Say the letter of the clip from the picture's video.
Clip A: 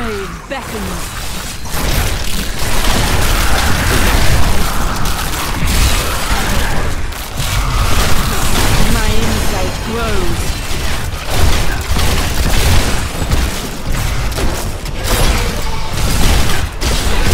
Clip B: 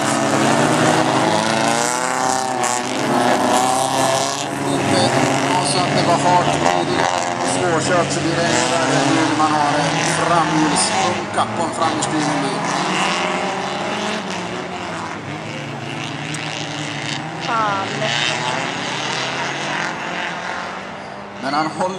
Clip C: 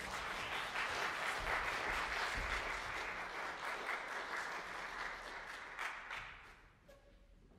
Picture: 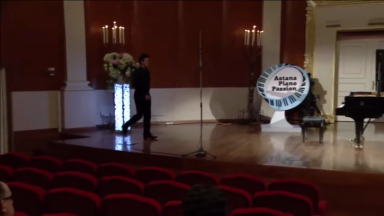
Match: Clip C